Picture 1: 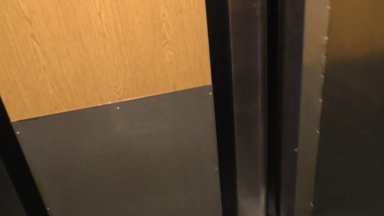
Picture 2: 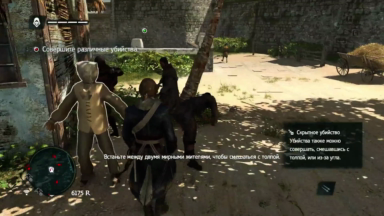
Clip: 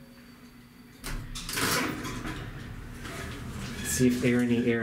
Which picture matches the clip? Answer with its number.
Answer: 1